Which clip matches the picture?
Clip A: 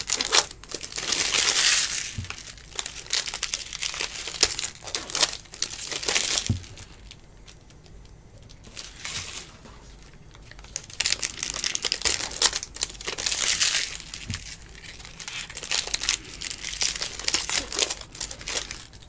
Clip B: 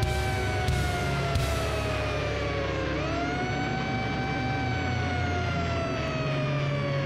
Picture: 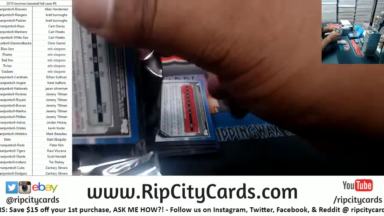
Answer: A